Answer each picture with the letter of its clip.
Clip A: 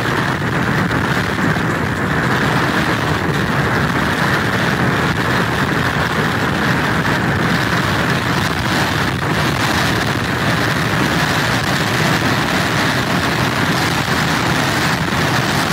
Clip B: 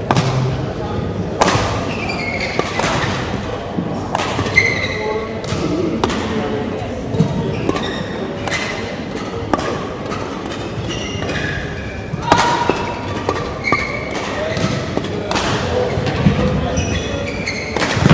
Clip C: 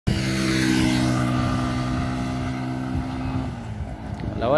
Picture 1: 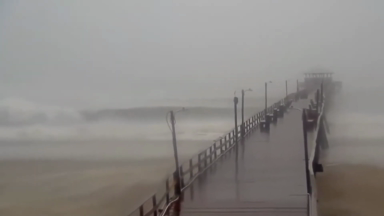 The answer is A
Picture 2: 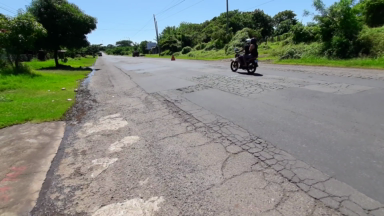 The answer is C